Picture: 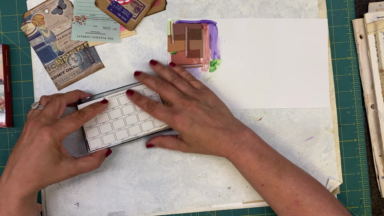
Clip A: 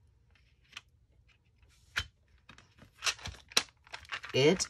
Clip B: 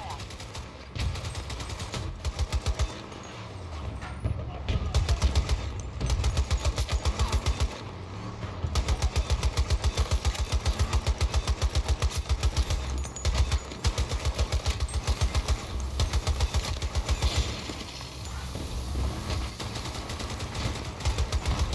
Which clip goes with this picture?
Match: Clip A